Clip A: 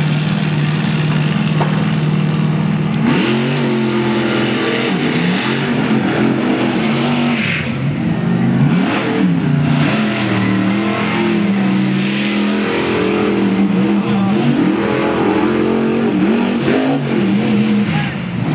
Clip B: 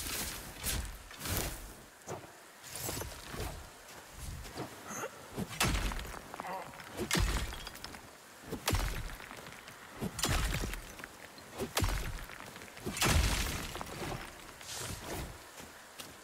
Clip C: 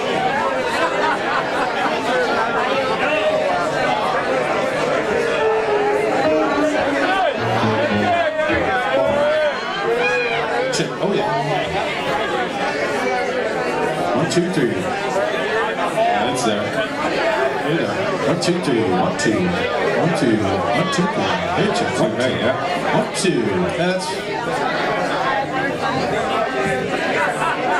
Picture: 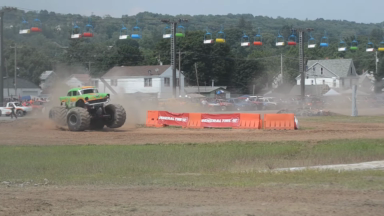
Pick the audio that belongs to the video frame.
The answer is A